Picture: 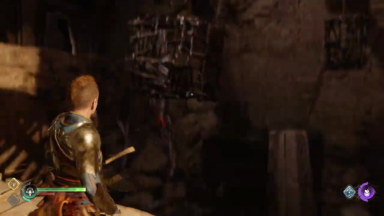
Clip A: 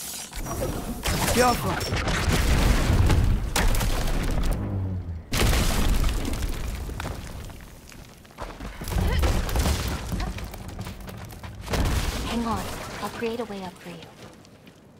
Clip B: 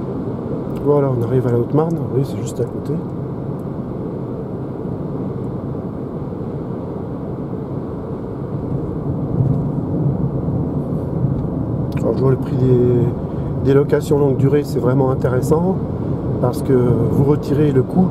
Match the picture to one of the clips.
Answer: A